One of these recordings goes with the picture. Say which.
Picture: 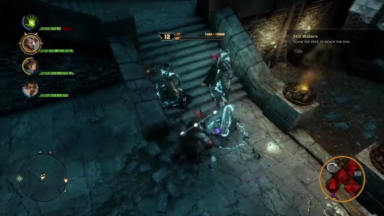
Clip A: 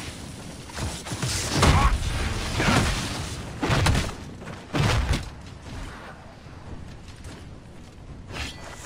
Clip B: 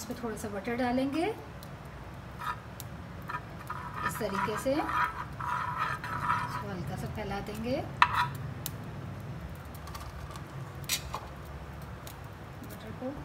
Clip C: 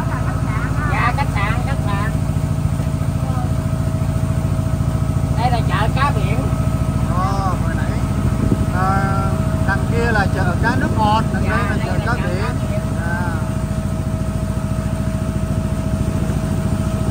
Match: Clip A